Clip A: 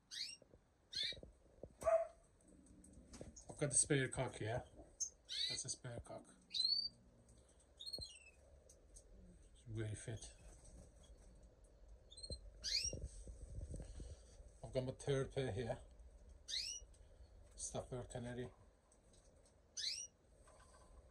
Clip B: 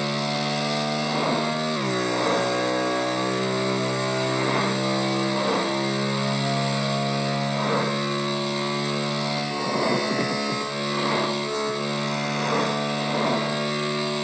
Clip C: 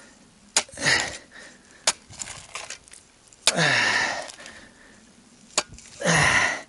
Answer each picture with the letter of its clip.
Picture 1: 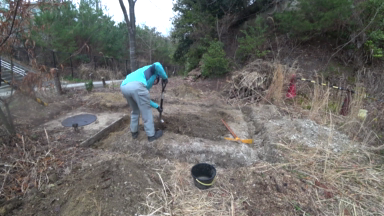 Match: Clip C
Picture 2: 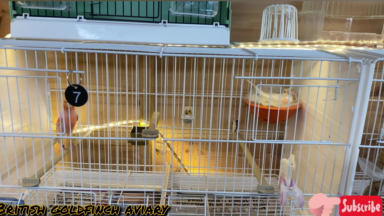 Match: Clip A